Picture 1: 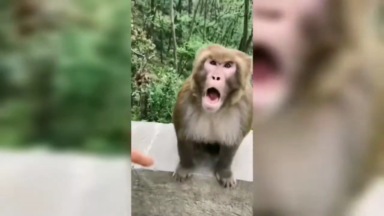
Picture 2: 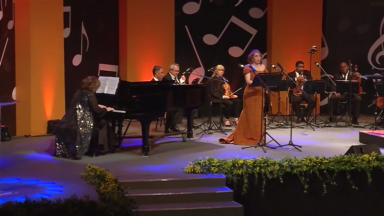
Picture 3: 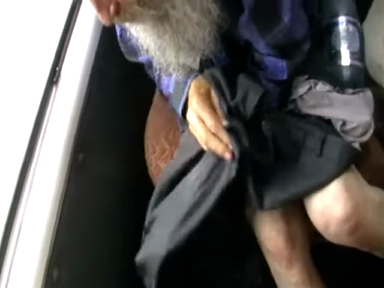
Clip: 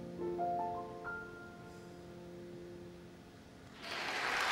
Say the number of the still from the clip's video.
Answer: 2